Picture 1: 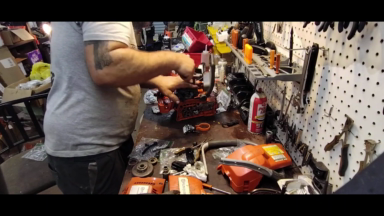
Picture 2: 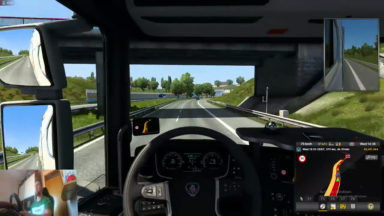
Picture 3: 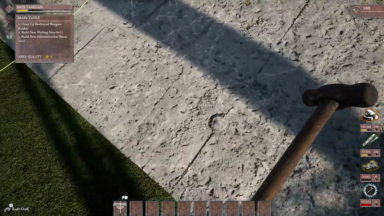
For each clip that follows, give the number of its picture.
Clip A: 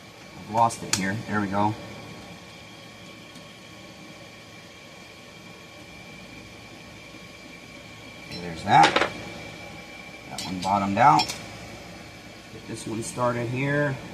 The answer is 1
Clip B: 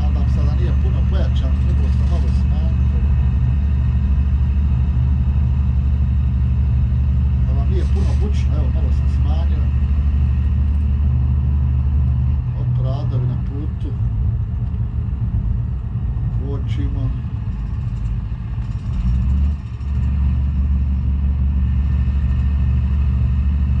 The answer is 2